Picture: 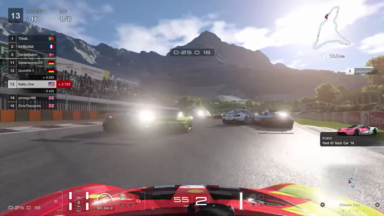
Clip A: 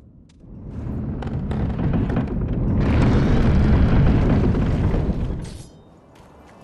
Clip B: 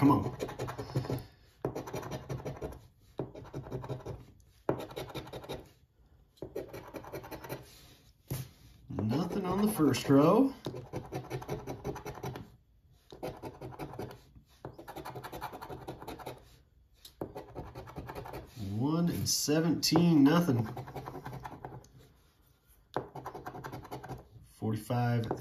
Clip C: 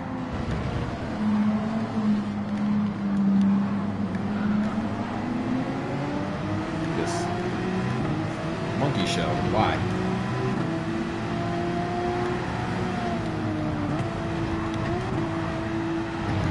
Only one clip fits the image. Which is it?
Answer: C